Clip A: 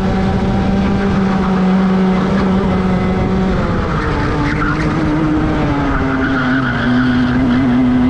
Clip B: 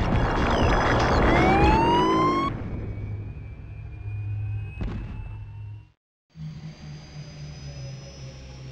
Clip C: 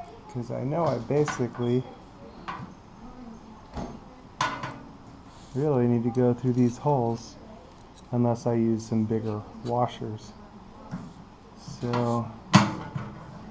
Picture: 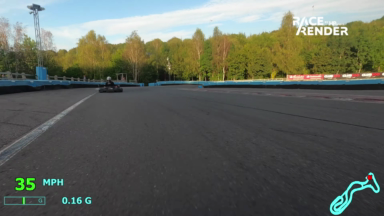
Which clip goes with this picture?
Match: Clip A